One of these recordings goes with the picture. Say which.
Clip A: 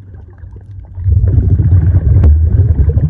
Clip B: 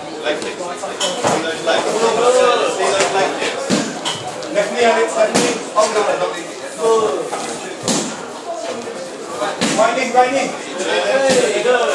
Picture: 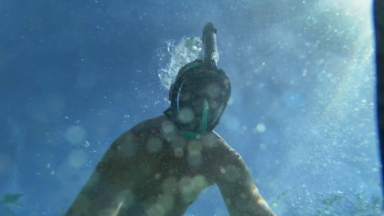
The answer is A